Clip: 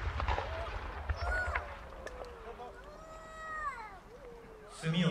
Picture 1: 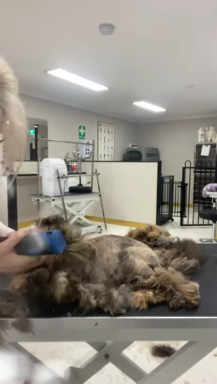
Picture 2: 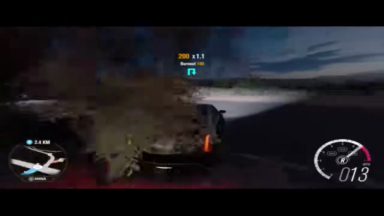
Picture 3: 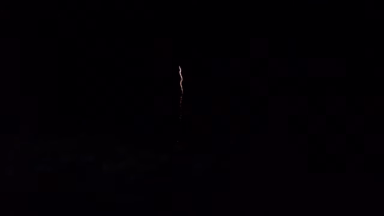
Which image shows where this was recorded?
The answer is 3